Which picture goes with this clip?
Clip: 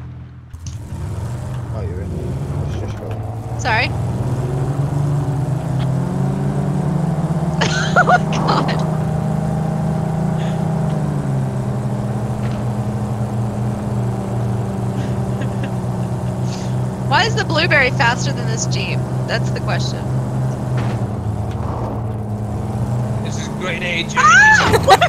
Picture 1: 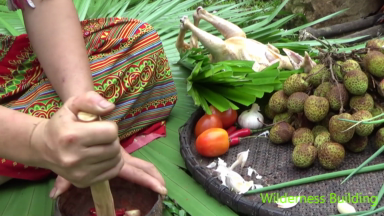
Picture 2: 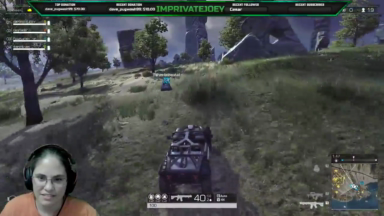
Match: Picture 2